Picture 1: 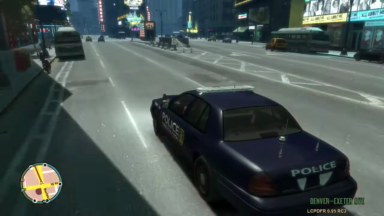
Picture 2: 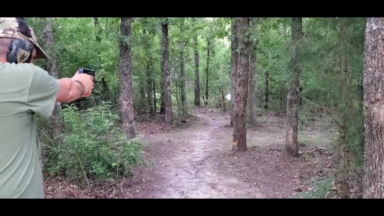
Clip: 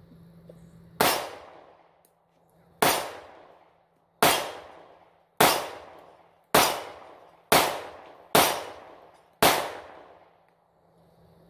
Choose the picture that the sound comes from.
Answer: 2